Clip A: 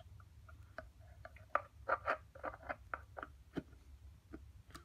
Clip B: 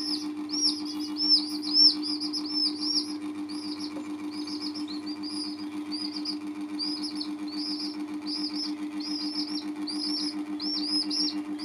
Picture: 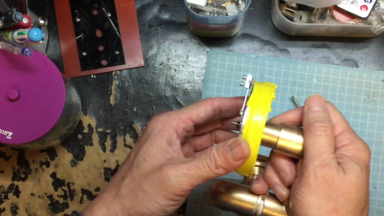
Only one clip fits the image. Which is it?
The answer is A